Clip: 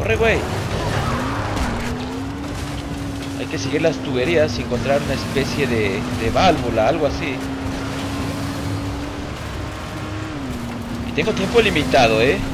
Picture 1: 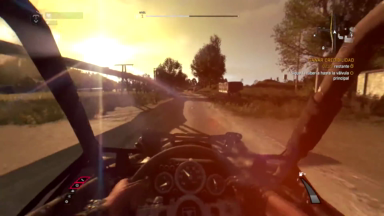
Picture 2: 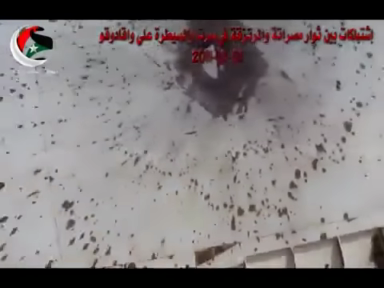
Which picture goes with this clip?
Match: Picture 1